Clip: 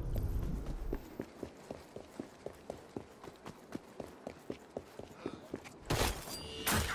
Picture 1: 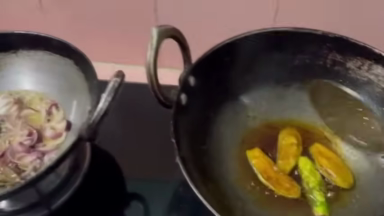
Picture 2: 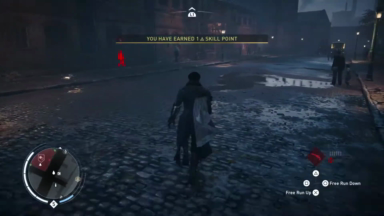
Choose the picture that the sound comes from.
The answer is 2